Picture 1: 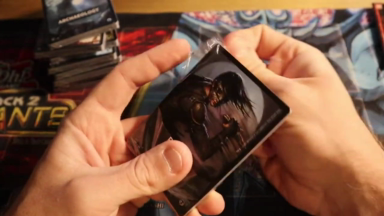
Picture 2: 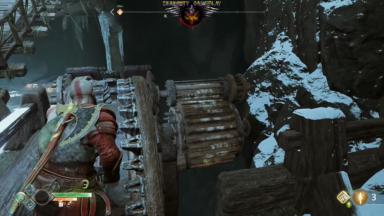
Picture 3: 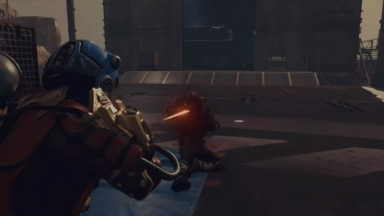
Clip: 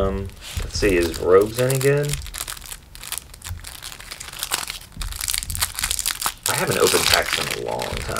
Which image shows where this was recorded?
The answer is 1